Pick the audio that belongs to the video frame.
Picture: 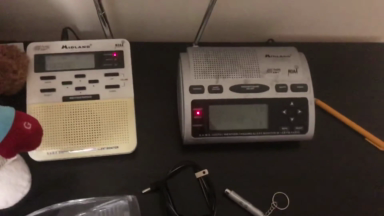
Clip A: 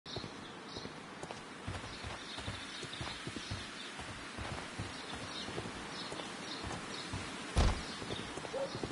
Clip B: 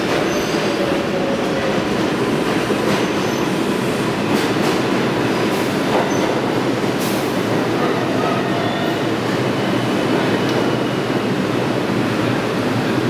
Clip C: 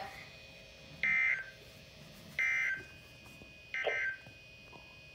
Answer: C